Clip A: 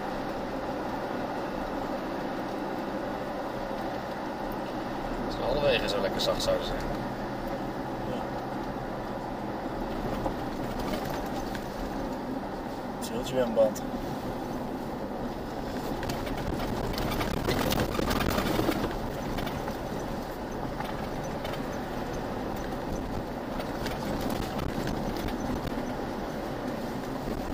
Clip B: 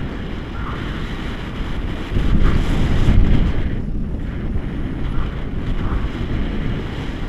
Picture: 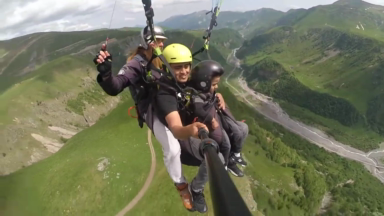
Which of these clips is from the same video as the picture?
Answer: B